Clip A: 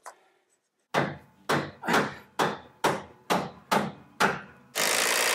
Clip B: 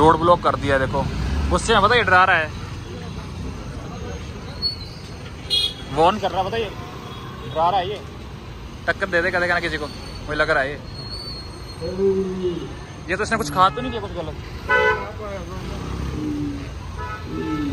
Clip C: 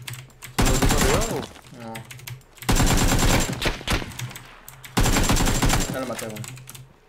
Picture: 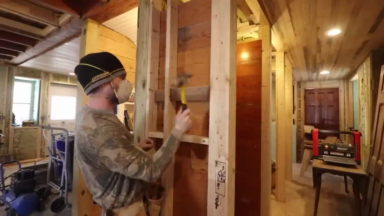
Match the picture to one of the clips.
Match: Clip A